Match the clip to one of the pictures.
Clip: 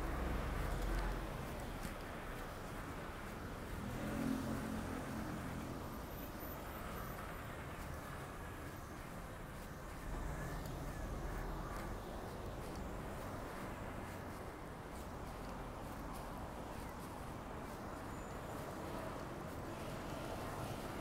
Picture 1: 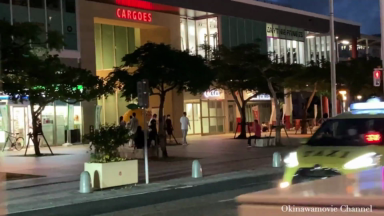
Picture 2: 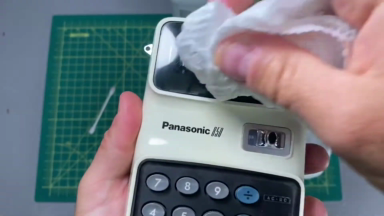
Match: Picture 1